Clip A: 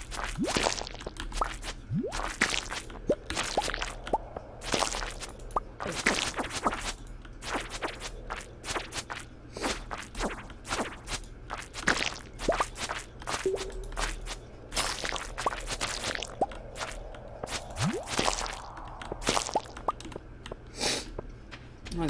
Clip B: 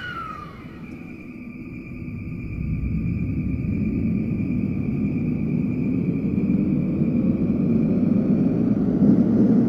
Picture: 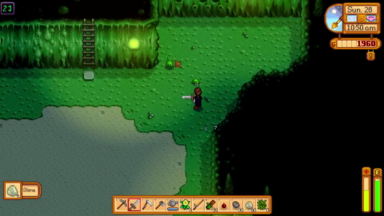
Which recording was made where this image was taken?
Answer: A